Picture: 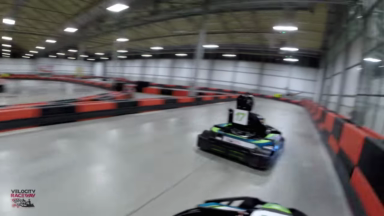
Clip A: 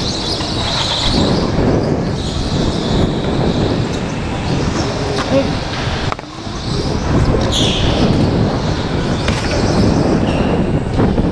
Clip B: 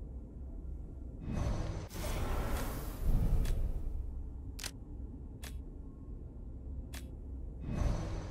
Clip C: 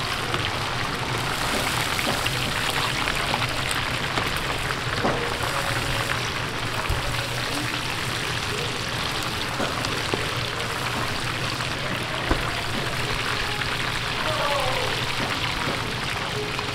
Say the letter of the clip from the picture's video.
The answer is A